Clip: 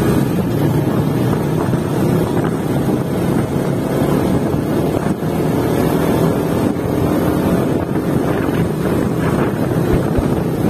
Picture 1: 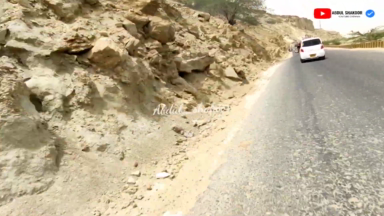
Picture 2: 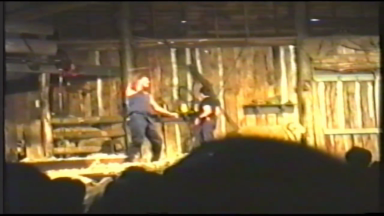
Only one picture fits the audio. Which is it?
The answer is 1